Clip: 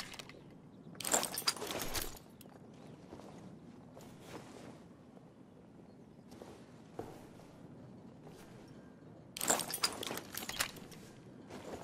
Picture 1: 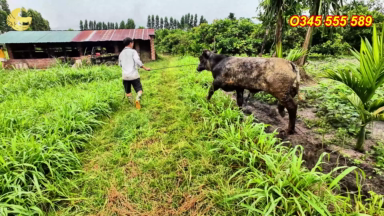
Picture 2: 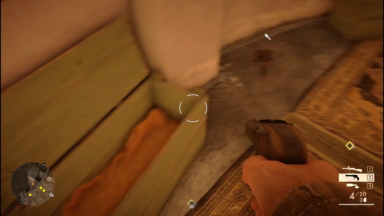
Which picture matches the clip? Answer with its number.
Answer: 2